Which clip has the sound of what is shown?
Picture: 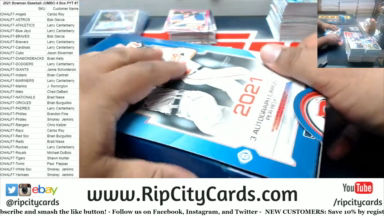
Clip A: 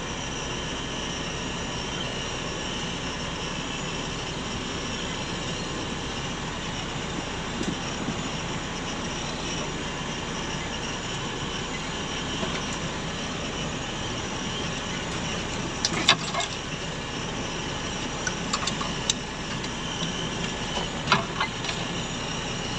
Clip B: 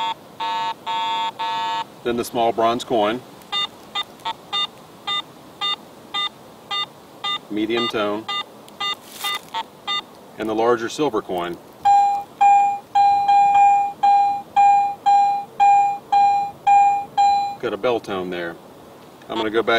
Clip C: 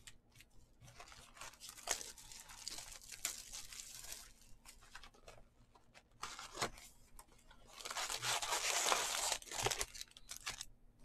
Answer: C